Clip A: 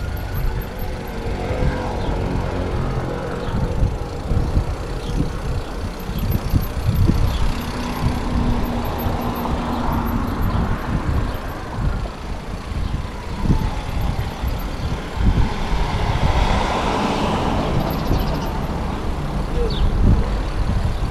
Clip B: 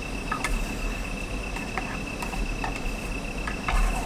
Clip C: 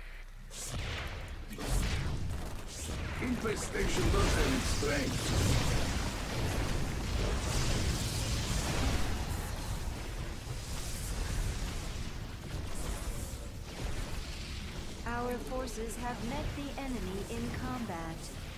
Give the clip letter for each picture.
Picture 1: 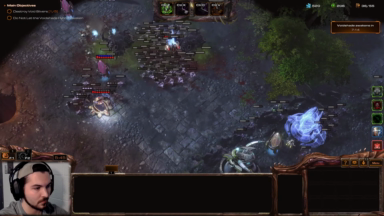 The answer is C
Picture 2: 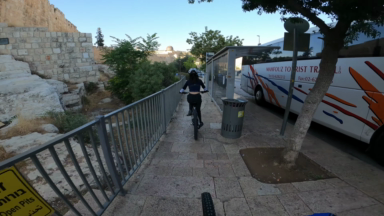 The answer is A